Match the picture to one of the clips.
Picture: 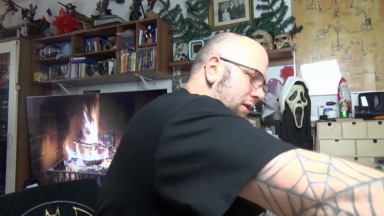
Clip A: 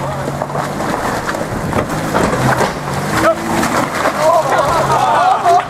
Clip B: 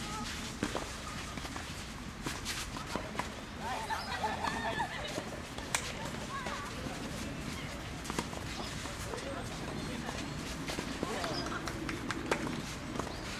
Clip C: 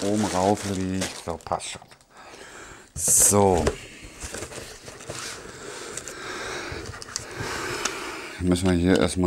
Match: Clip C